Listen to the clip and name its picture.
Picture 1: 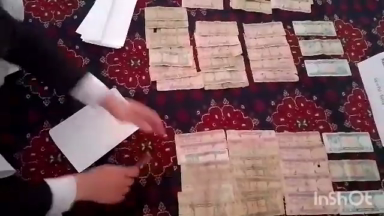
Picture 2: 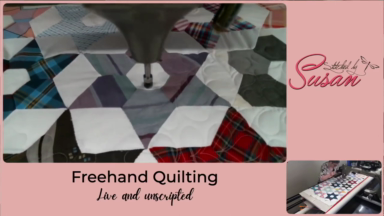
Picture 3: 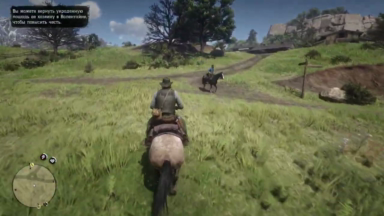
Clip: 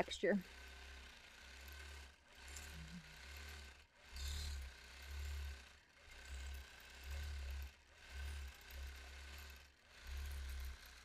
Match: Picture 2